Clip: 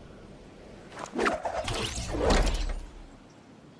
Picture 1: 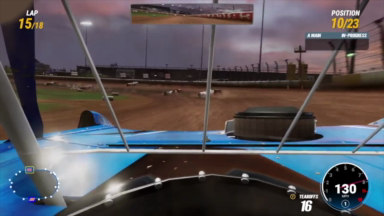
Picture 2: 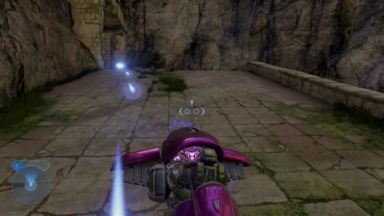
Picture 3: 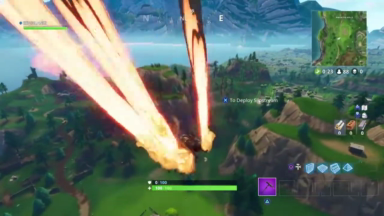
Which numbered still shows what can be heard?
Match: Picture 3